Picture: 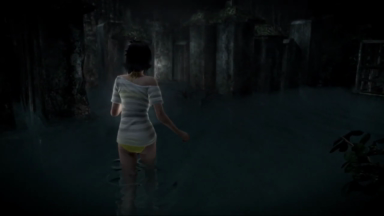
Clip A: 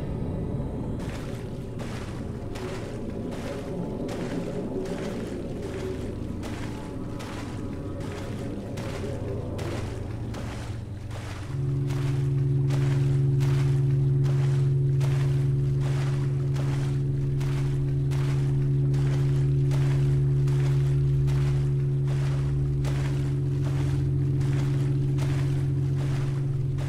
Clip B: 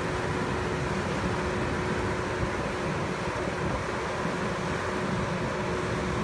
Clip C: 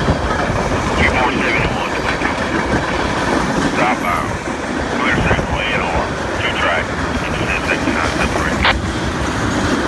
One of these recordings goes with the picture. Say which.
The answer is A